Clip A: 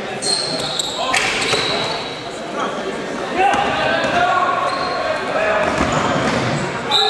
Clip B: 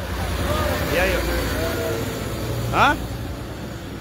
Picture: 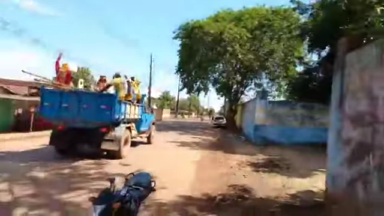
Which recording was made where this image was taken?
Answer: B